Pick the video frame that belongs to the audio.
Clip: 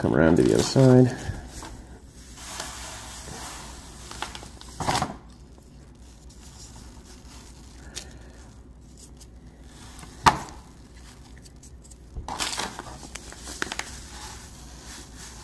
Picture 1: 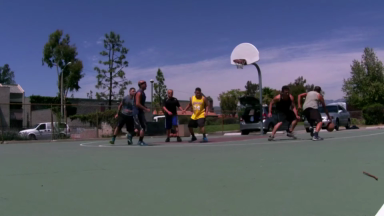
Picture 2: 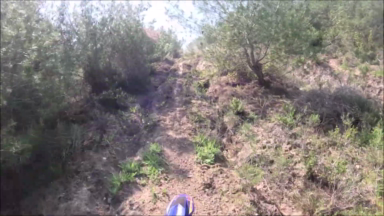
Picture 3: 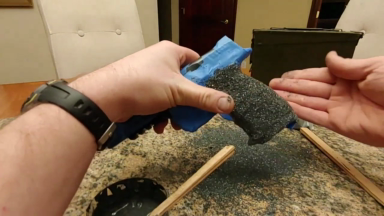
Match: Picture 3